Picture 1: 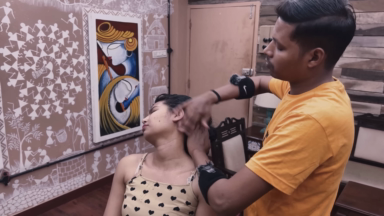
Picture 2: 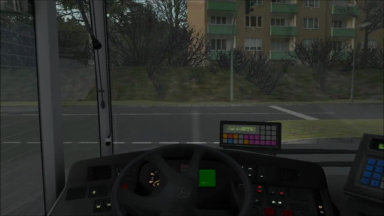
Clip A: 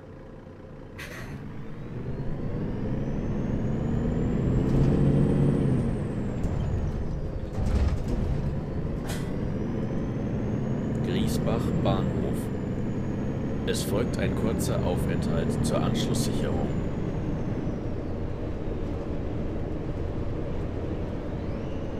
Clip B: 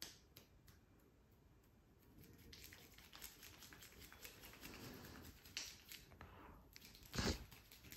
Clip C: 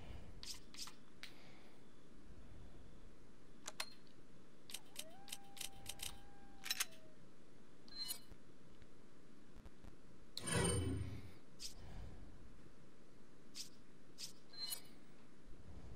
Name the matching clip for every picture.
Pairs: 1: B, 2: A